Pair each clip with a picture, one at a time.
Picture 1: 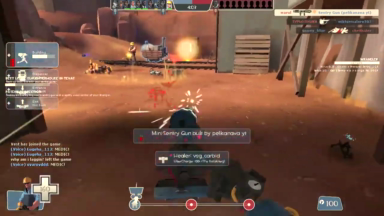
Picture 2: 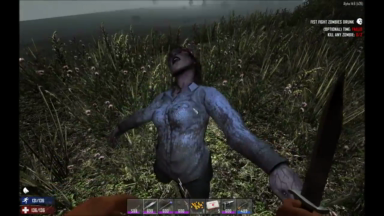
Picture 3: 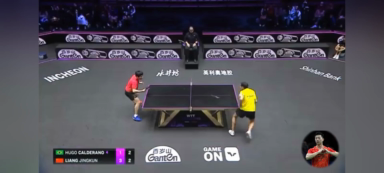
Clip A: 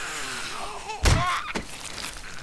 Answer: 2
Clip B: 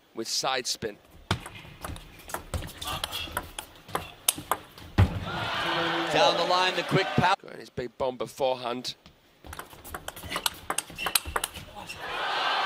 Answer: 3